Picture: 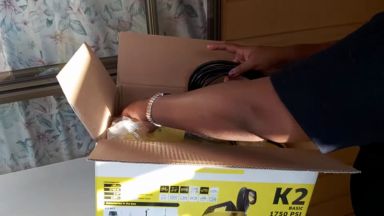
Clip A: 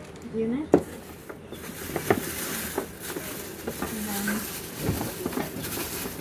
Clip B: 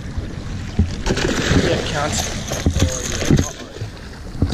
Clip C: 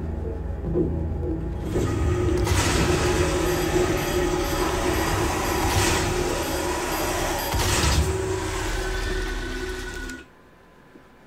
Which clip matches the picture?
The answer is A